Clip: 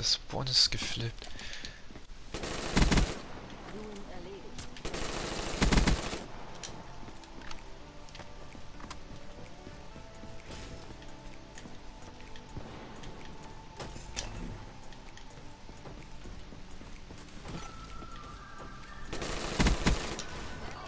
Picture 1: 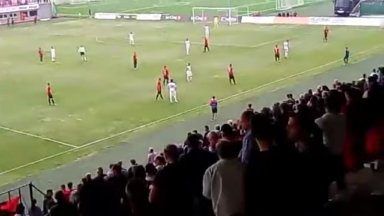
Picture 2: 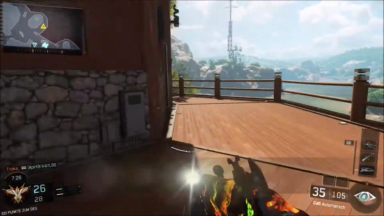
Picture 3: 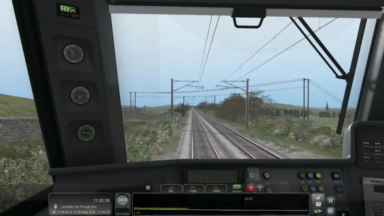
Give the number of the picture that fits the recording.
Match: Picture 2